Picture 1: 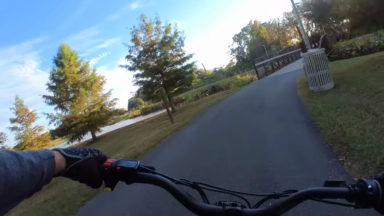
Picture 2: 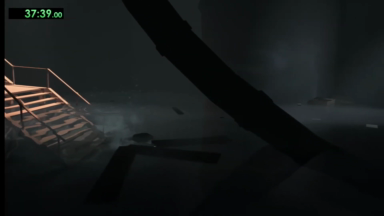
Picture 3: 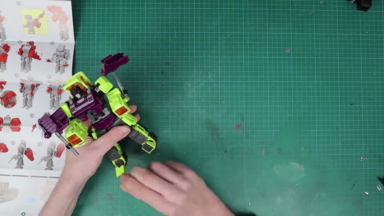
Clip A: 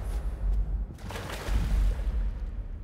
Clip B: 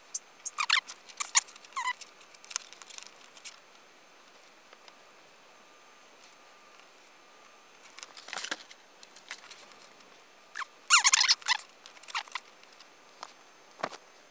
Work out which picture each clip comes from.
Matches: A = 2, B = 3